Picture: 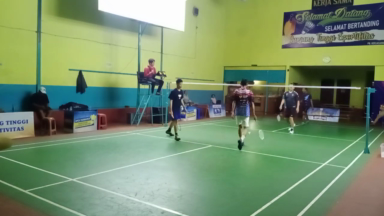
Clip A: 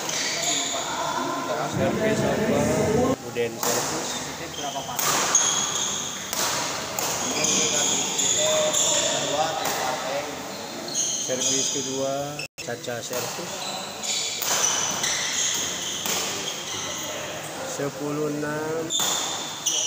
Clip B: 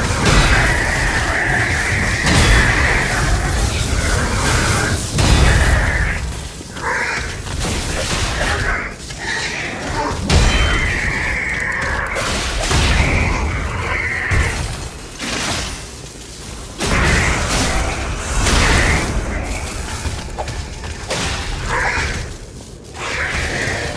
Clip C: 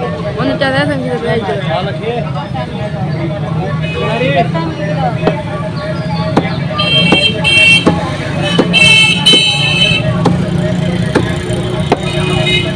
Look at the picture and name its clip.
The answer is A